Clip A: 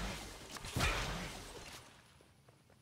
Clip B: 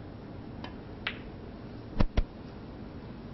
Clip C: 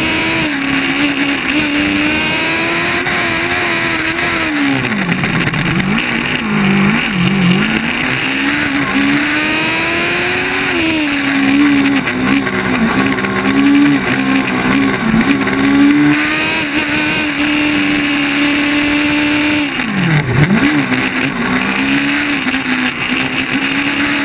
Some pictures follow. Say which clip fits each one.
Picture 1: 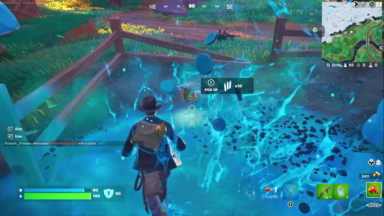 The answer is A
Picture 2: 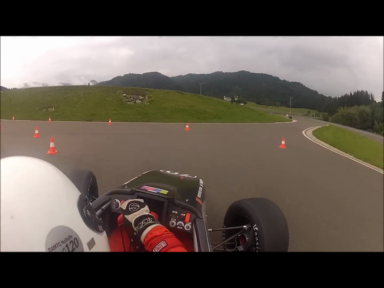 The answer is C